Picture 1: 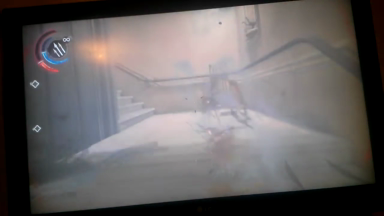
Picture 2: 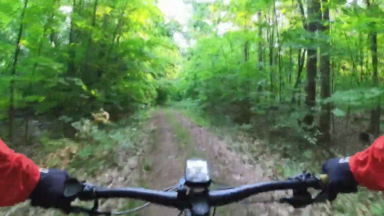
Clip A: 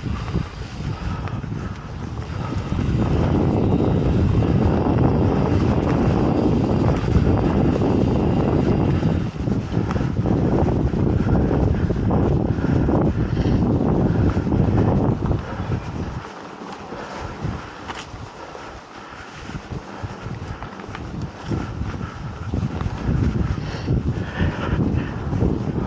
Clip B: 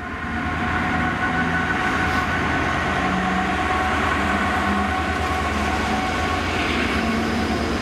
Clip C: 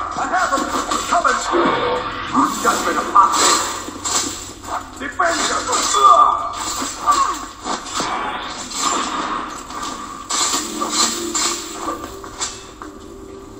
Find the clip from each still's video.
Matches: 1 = C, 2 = A